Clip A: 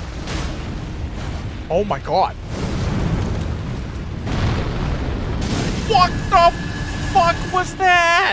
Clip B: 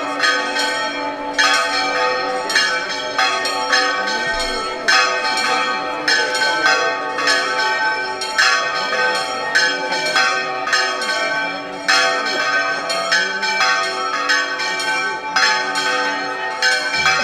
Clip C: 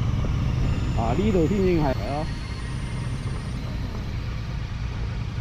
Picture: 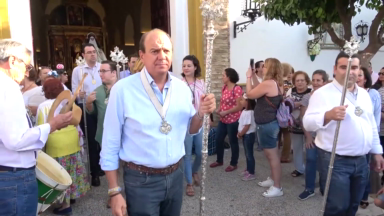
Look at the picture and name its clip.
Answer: B